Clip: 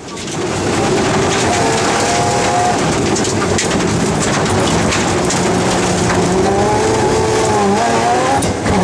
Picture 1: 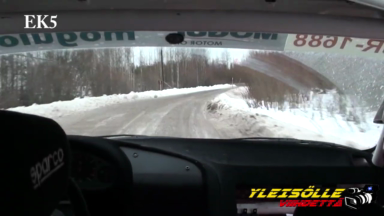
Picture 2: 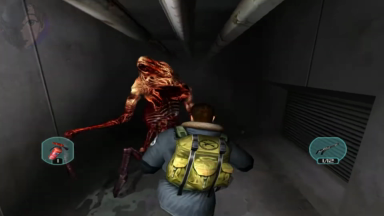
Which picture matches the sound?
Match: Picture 1